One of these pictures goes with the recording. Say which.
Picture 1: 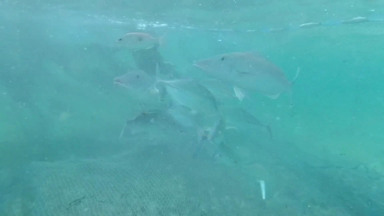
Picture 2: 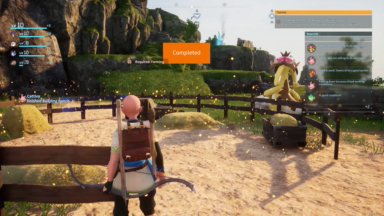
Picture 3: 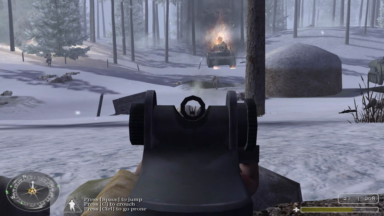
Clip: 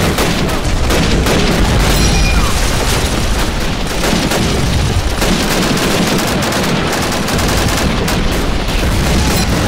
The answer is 3